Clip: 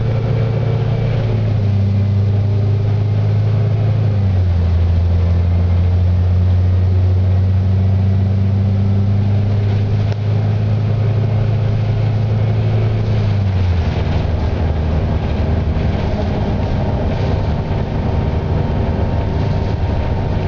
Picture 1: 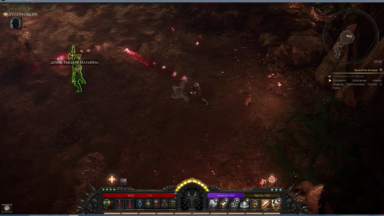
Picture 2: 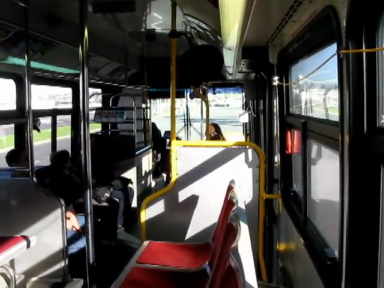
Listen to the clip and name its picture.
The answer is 2